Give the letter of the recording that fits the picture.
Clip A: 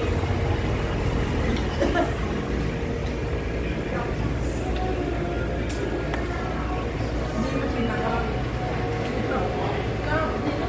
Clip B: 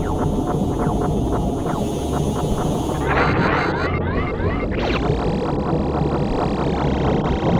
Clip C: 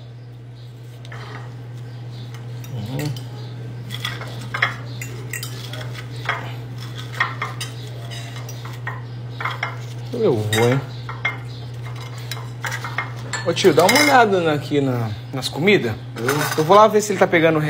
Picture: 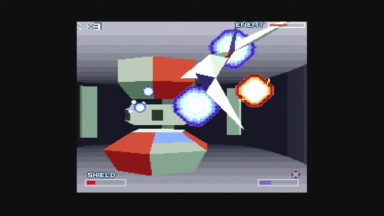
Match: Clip B